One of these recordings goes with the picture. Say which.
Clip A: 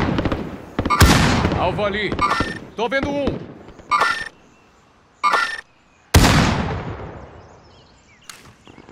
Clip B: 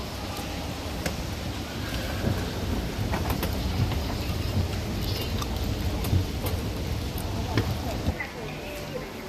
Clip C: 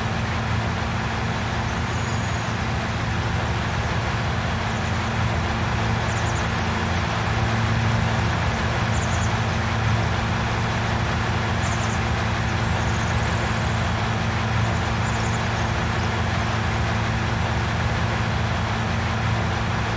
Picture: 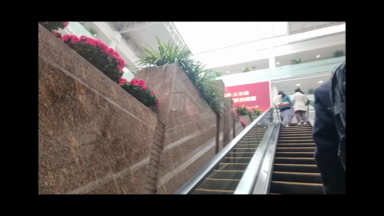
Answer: B